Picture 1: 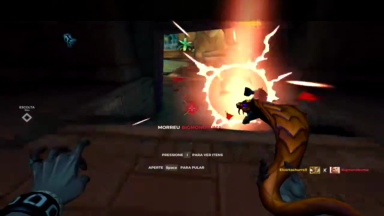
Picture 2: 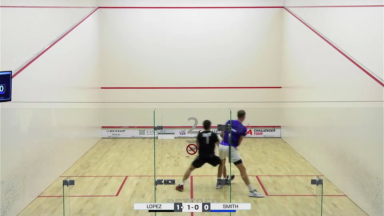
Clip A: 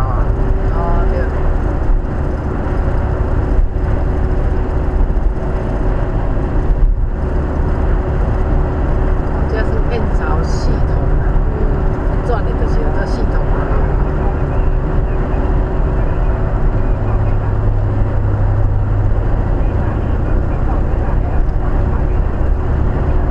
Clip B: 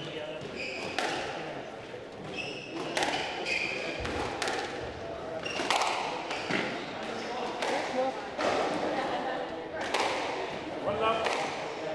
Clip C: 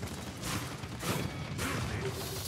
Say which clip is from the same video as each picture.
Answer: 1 C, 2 B